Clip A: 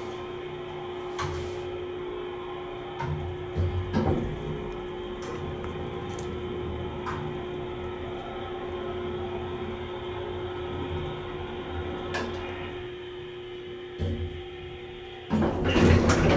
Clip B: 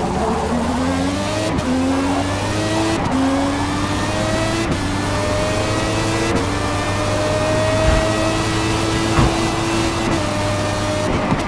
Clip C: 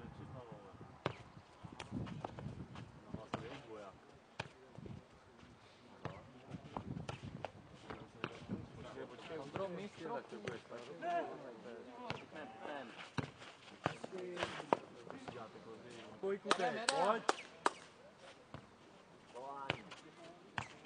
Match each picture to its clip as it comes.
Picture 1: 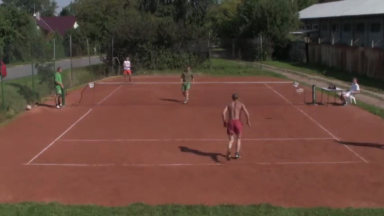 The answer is C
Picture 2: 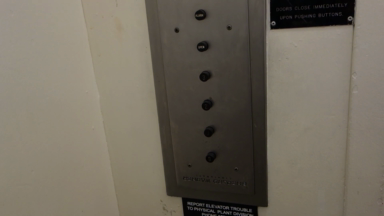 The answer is A